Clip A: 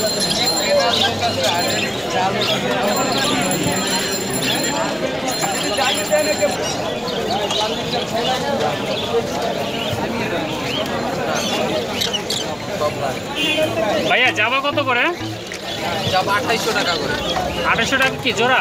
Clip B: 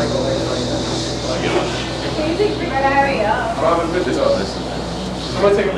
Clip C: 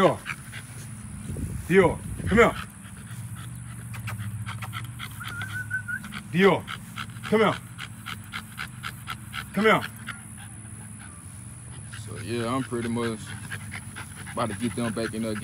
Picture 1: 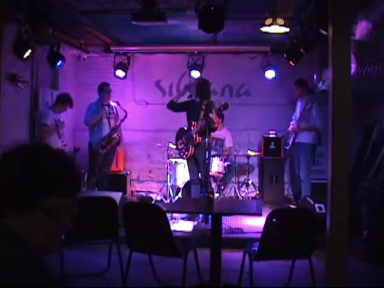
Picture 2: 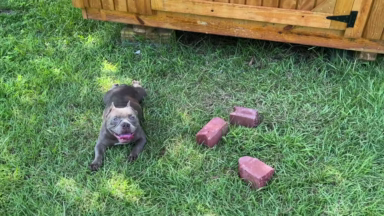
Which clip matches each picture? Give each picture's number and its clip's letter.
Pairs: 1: B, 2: C